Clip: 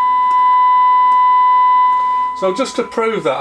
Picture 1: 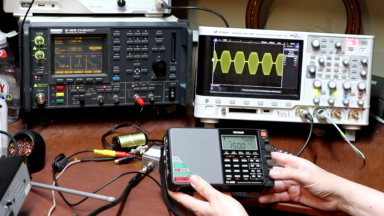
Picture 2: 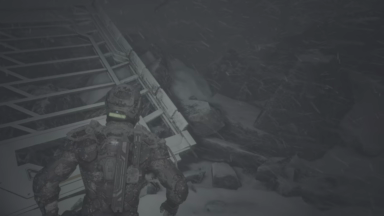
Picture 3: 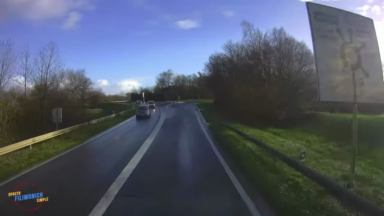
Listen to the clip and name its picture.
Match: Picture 1